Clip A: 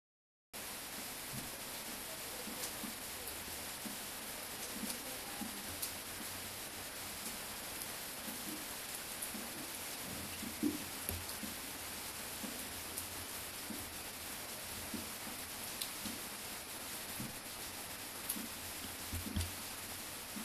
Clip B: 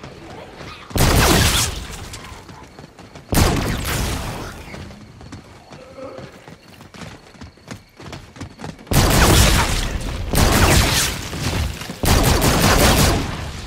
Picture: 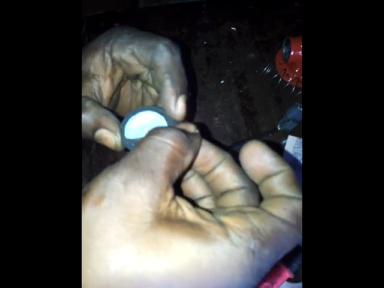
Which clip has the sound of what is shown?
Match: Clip A